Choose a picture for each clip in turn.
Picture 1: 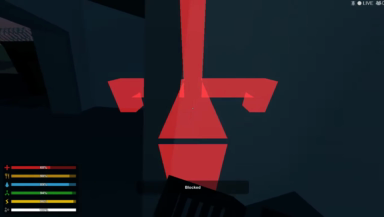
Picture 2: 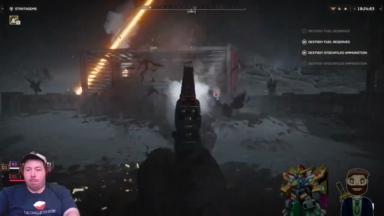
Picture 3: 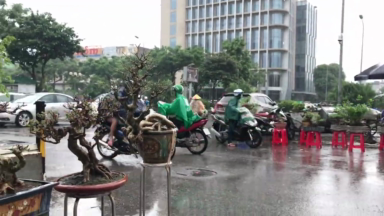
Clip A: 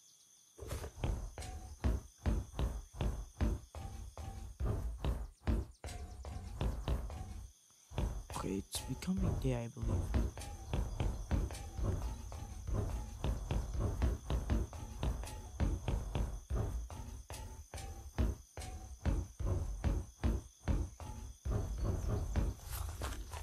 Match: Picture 1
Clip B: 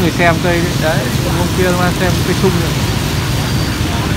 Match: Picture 3